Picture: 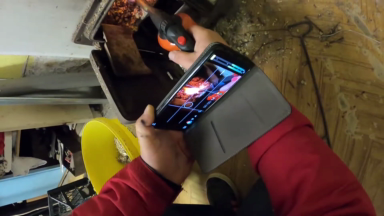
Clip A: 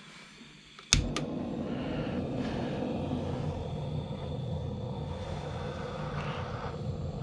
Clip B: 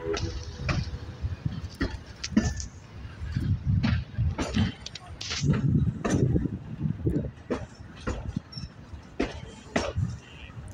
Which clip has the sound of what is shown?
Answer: A